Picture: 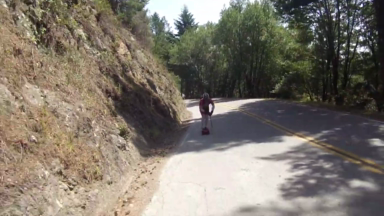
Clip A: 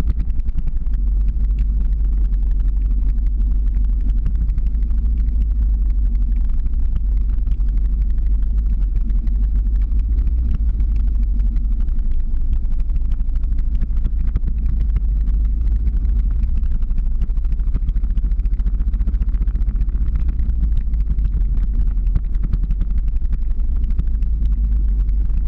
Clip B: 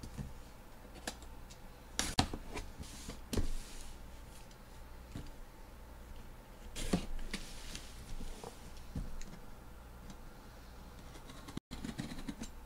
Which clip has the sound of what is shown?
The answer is A